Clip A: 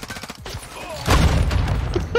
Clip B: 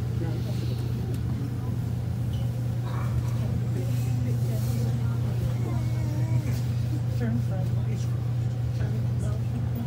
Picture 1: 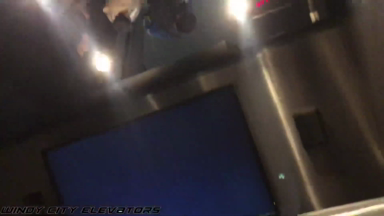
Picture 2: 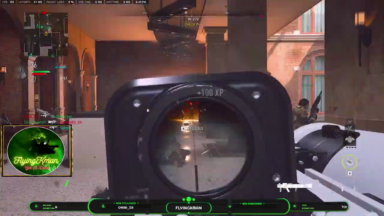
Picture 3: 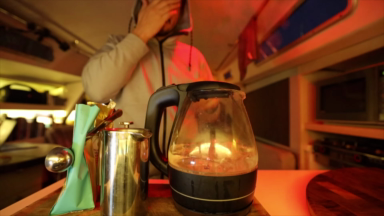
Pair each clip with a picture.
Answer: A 2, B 1